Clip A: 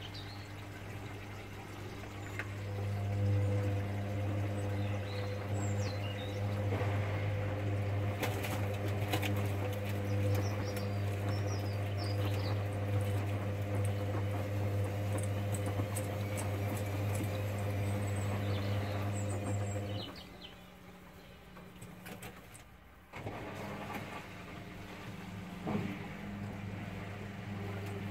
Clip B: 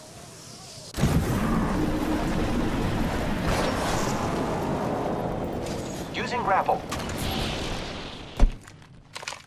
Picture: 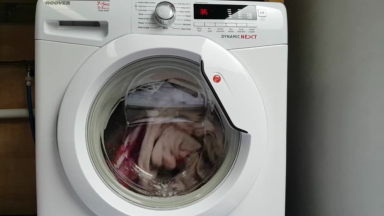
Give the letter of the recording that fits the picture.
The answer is A